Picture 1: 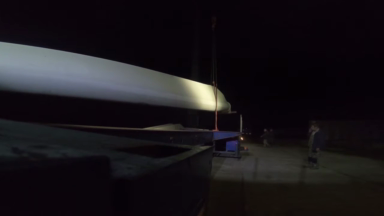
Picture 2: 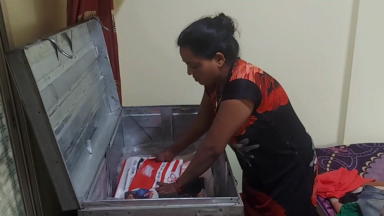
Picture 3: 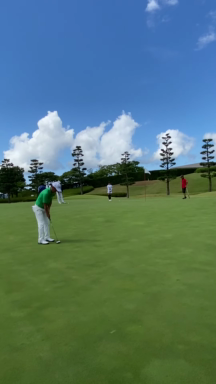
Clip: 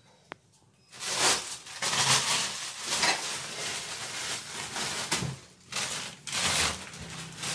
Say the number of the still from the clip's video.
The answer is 2